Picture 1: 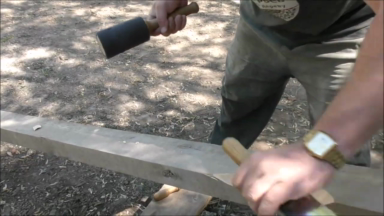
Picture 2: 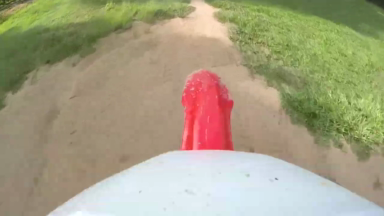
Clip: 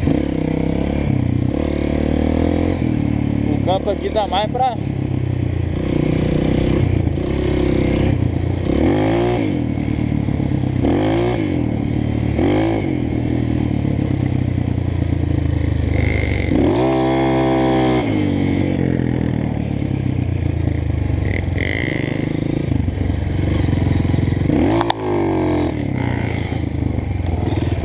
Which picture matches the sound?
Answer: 2